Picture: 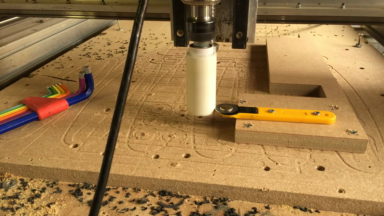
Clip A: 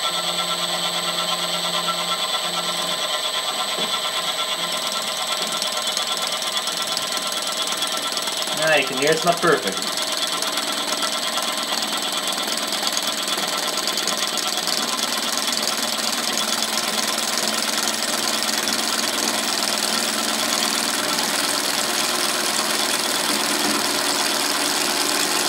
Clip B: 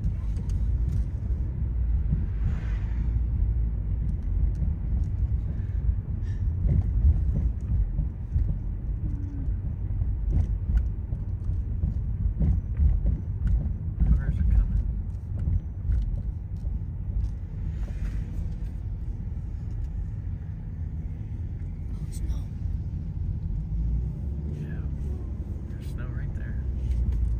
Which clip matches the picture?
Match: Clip A